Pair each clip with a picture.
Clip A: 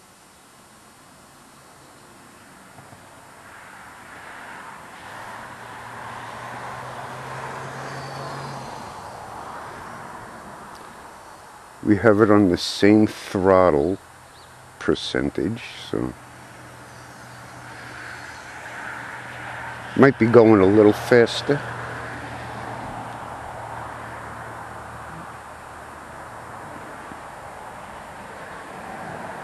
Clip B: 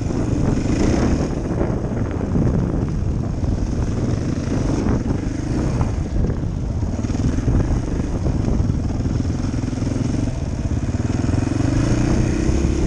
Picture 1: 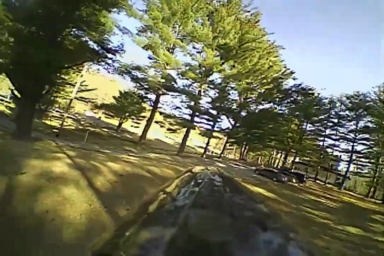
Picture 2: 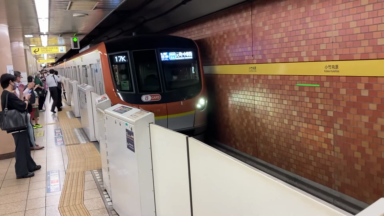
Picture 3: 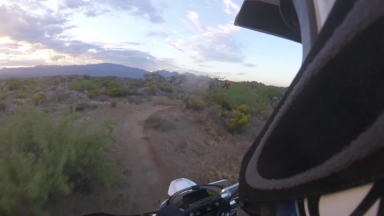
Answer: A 1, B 3